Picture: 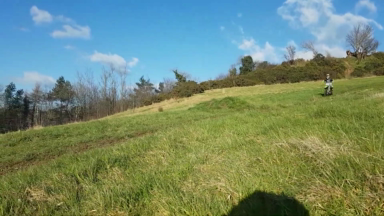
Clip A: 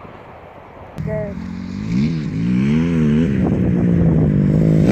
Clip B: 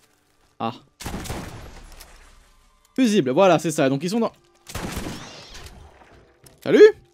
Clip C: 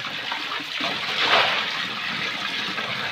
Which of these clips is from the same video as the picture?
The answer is A